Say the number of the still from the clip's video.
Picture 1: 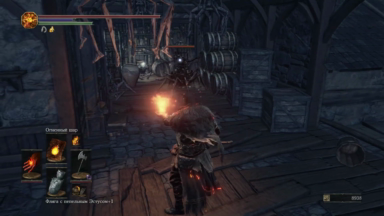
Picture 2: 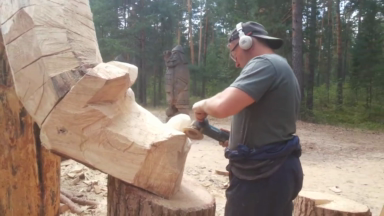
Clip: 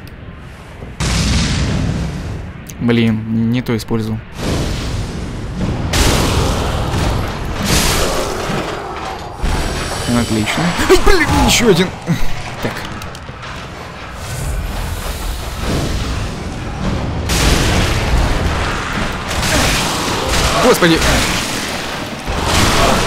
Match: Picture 1